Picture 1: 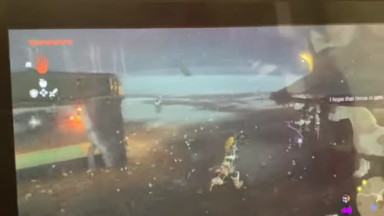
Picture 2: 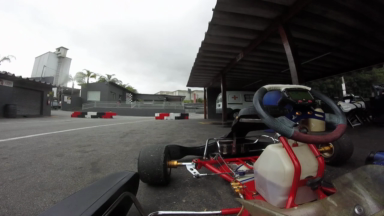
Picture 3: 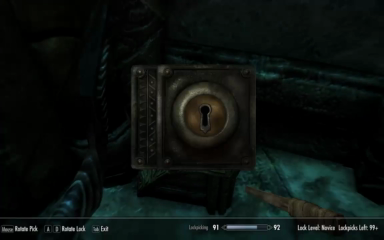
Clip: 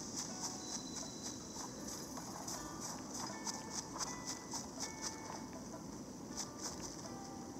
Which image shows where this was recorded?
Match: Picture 1